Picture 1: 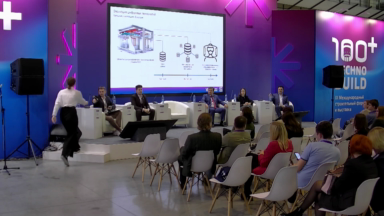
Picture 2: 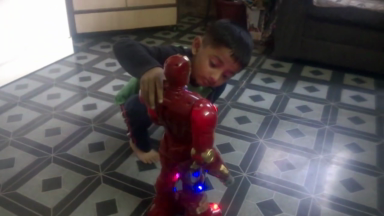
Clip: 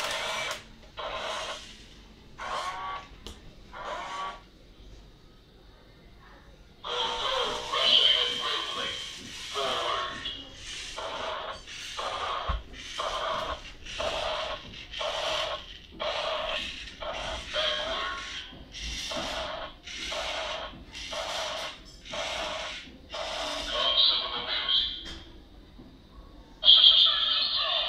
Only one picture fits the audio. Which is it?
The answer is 2